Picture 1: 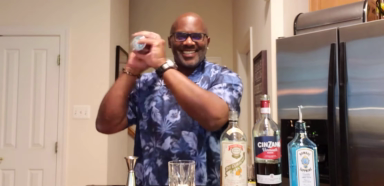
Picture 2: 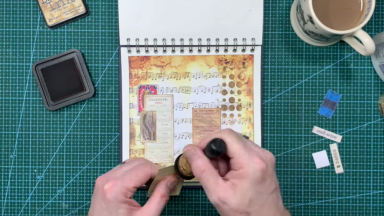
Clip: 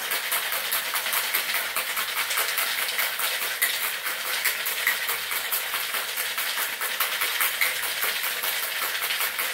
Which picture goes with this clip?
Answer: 1